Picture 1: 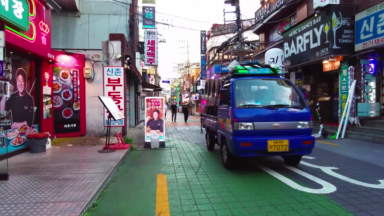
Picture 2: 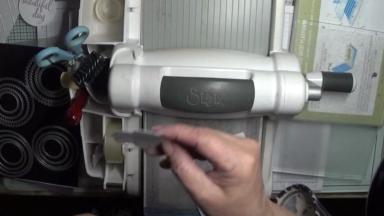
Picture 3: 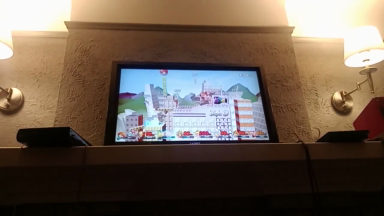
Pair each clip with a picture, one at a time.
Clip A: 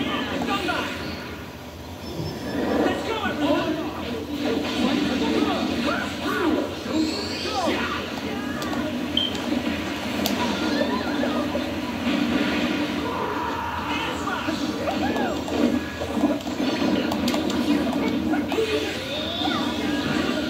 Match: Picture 3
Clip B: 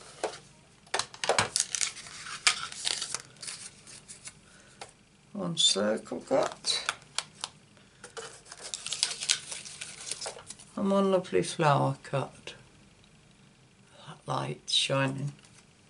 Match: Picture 2